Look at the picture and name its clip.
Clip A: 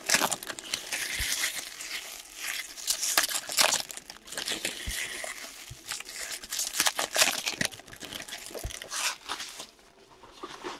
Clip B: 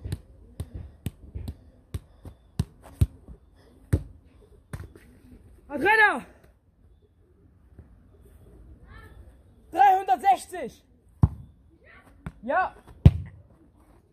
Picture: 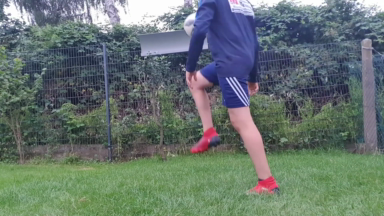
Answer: B